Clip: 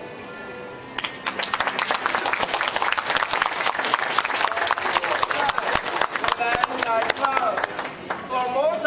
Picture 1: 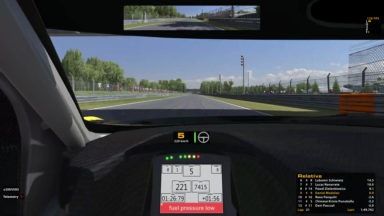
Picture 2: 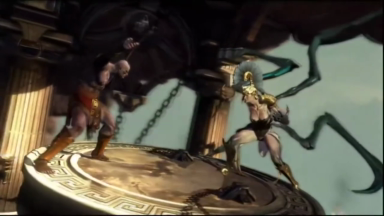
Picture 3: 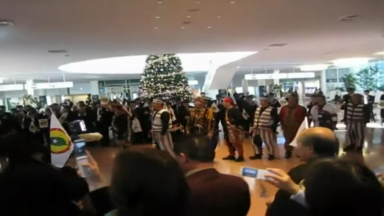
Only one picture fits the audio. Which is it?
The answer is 3